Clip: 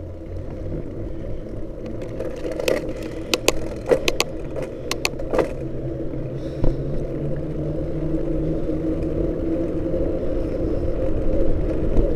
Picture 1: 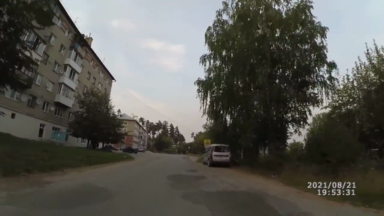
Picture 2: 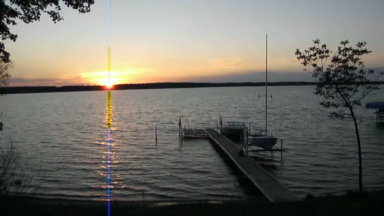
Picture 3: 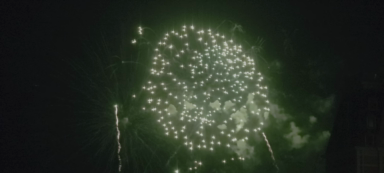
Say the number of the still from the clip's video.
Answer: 1